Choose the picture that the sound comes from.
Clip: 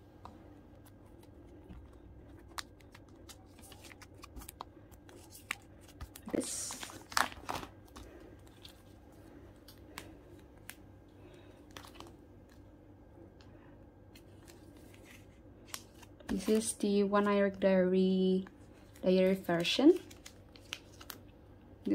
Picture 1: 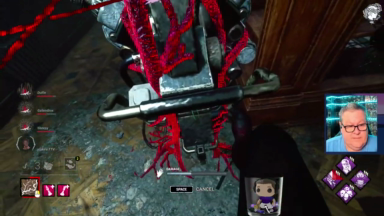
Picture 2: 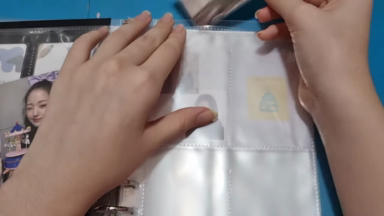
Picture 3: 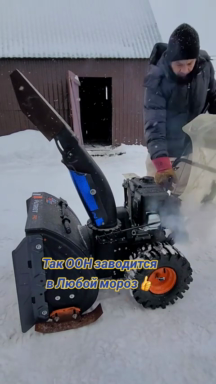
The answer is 2